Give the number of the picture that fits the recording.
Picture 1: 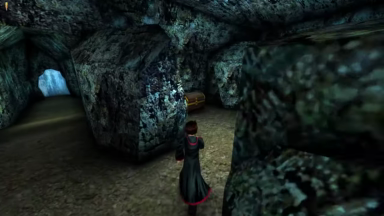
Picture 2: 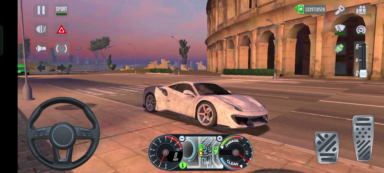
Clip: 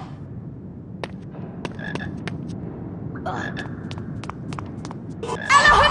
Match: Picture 1